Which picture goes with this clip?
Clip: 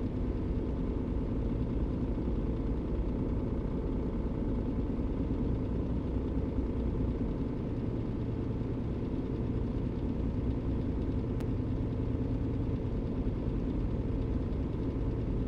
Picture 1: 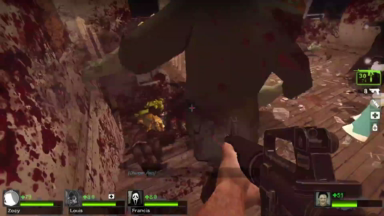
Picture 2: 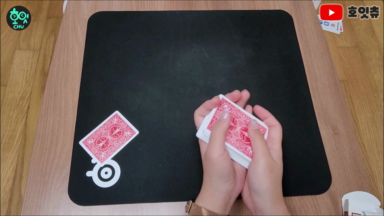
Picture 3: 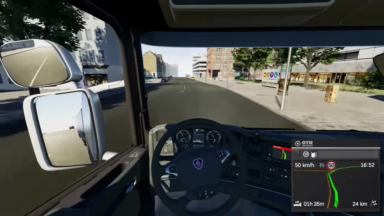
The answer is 3